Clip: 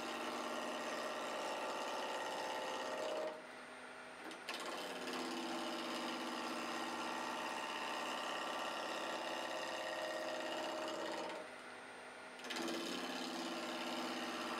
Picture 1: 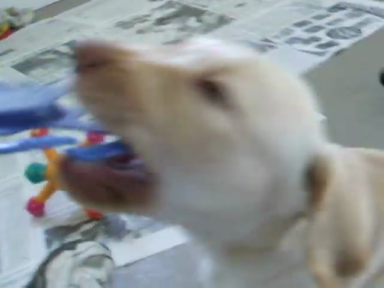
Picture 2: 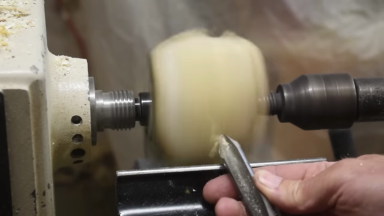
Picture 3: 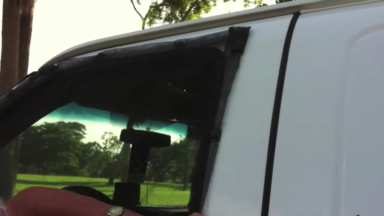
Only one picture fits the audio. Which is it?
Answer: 2